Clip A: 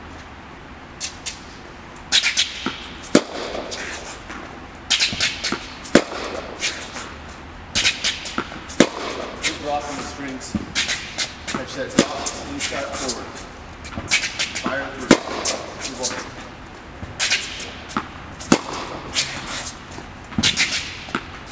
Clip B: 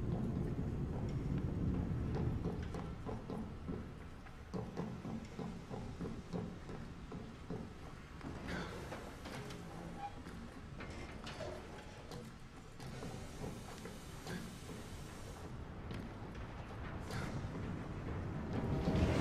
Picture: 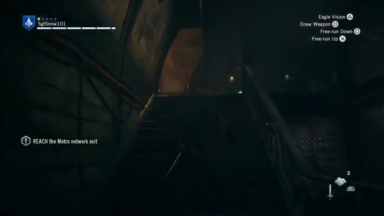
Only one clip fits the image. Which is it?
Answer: B